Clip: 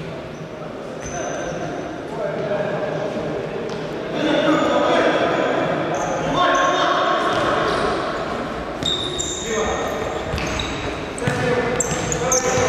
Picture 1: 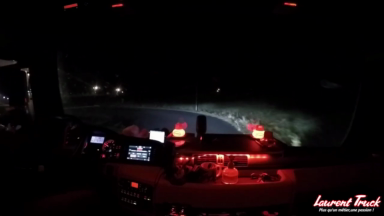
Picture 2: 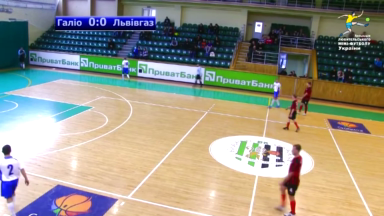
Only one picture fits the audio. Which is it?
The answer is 2